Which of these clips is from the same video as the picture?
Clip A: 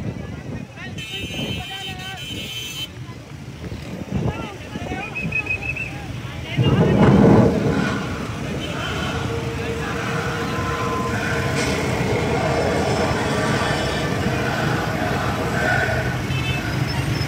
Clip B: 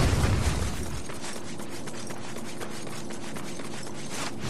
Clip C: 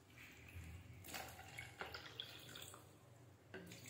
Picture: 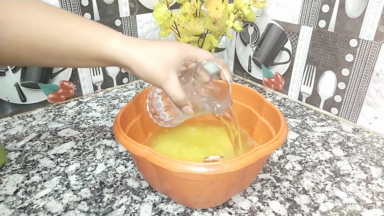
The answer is C